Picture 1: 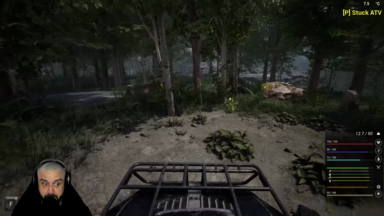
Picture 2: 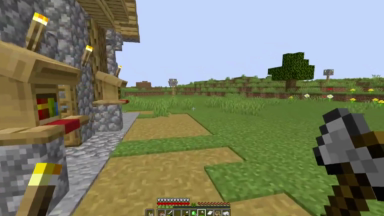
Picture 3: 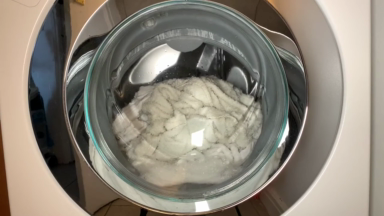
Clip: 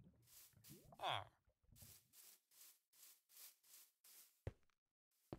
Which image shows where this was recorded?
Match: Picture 2